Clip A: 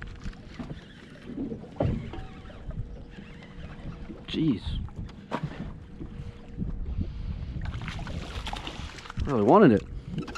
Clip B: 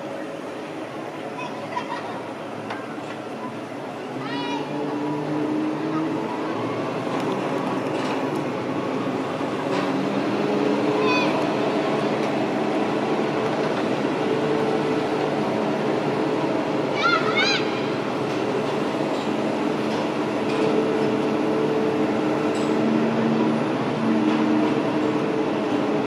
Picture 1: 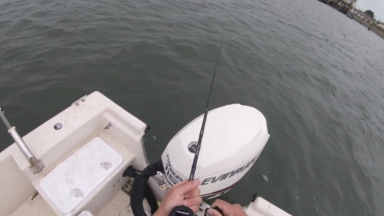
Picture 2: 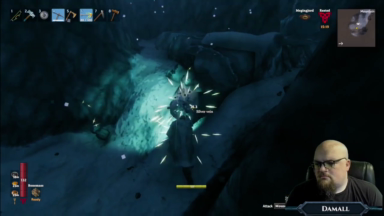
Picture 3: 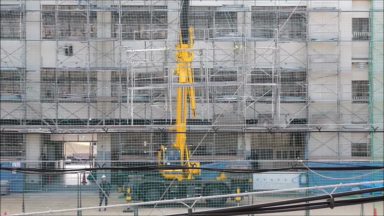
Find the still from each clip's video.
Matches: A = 1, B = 3